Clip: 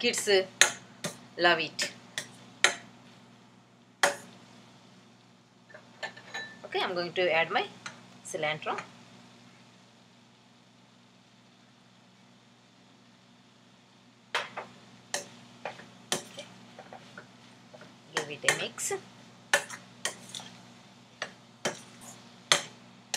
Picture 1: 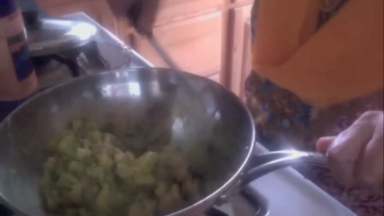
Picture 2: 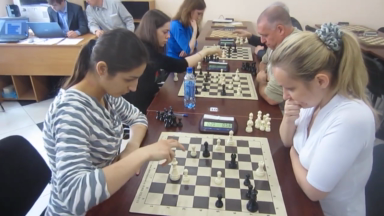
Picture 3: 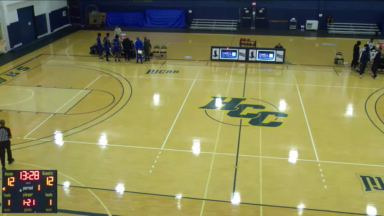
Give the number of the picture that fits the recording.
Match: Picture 1